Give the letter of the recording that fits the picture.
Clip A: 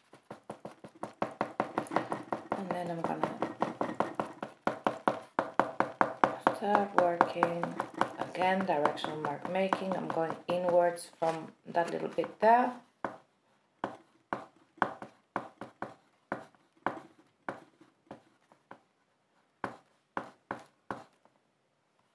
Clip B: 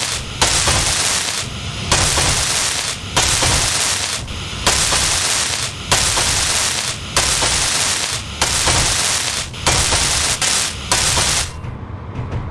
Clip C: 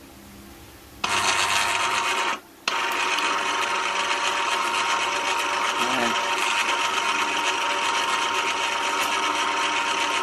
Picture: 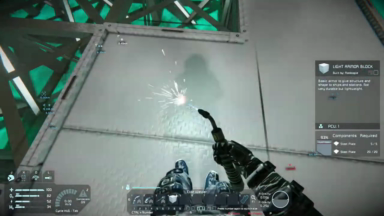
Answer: B